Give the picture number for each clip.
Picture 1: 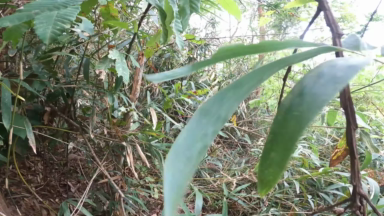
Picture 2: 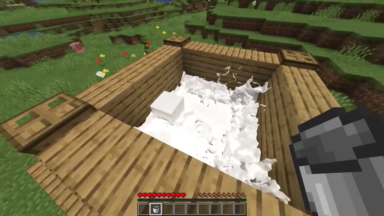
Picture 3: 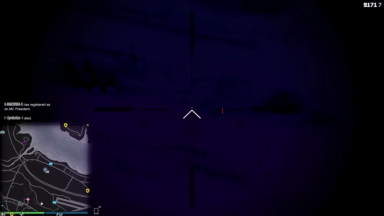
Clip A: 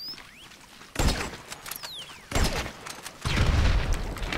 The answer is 3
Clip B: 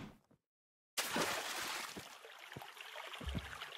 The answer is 2